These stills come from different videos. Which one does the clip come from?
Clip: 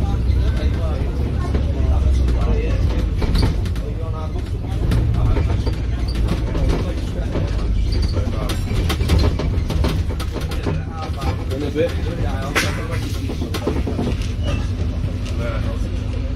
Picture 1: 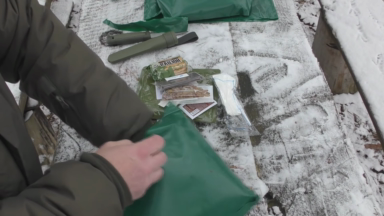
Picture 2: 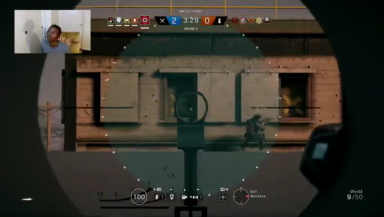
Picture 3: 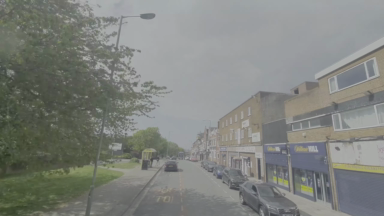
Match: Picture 3